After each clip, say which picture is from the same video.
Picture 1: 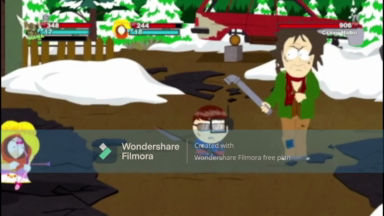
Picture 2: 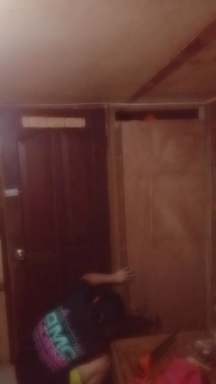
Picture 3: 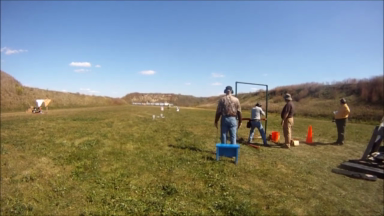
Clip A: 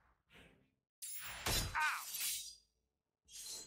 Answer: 1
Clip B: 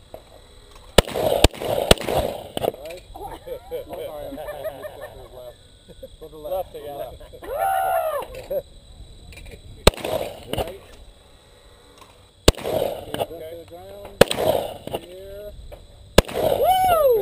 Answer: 3